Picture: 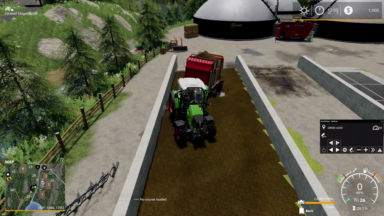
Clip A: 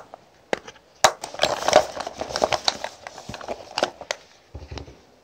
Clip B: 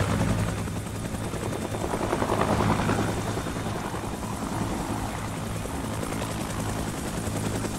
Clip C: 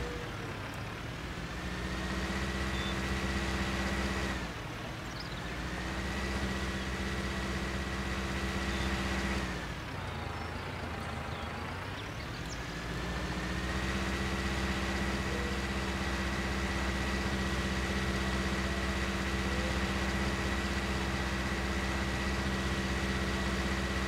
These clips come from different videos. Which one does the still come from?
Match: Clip C